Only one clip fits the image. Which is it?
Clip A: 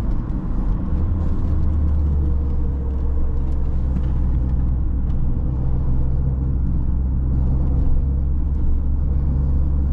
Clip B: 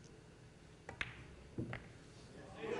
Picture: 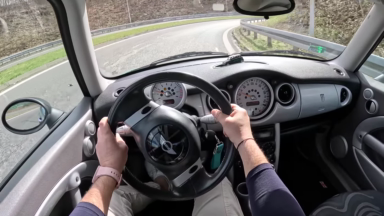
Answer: A